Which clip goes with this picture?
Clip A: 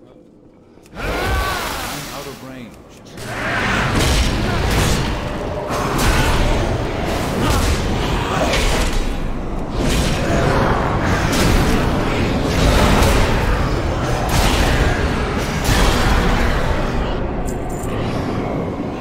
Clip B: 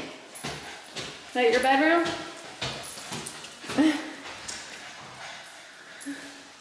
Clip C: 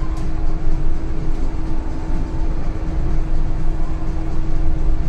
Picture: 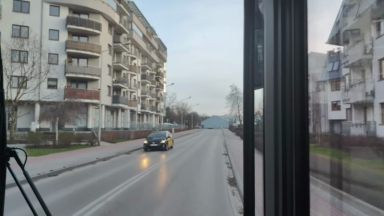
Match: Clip C